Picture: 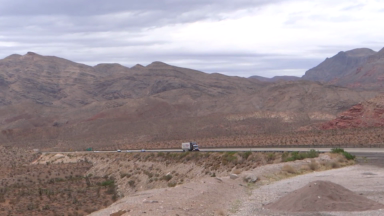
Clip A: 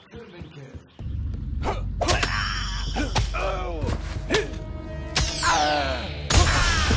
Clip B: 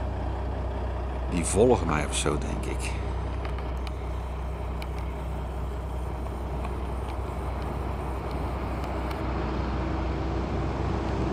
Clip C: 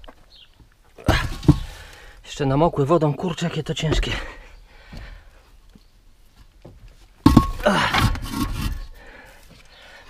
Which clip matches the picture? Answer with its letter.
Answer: B